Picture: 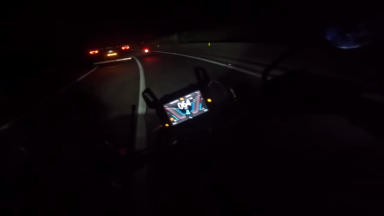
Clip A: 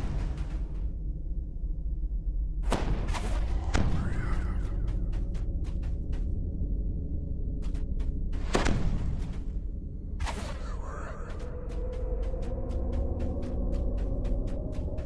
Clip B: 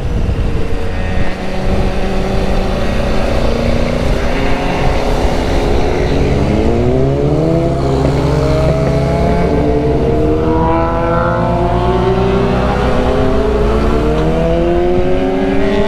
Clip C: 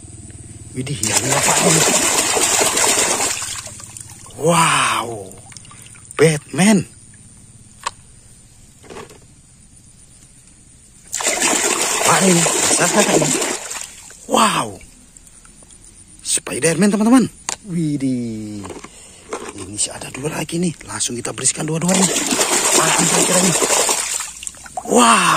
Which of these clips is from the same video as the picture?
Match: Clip B